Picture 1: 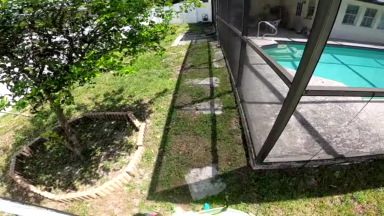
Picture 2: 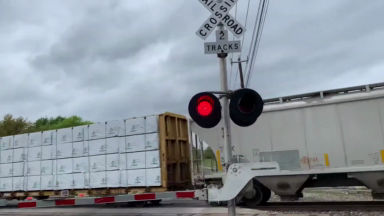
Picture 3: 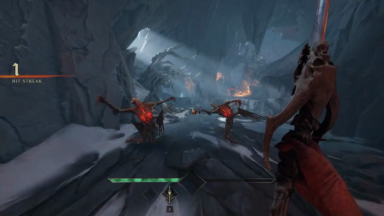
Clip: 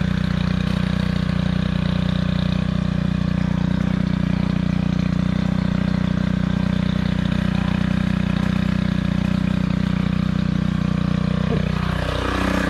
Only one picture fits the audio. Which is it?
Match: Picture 1